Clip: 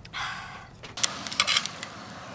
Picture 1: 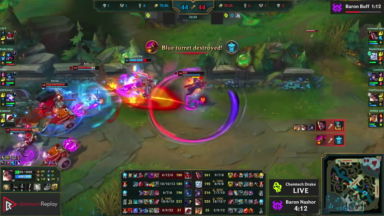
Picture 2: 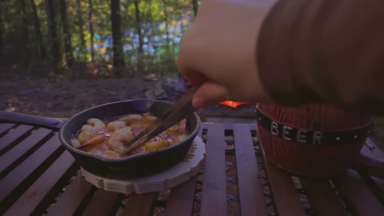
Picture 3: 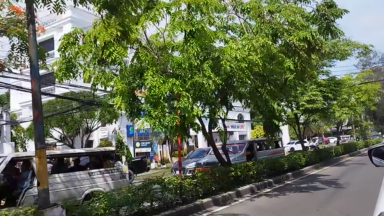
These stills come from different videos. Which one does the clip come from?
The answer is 2